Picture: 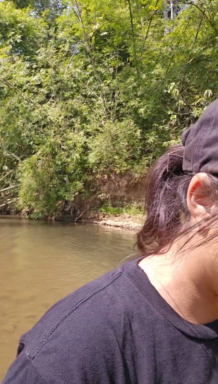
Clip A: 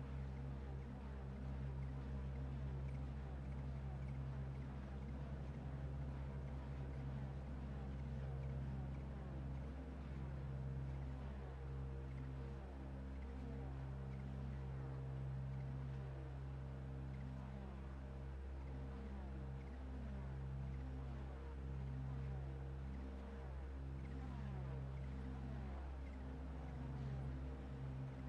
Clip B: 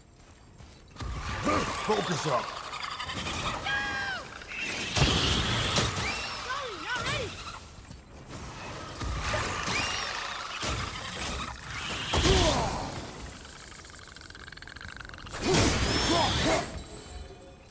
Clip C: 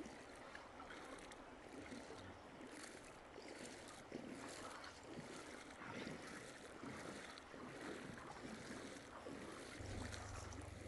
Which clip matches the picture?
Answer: C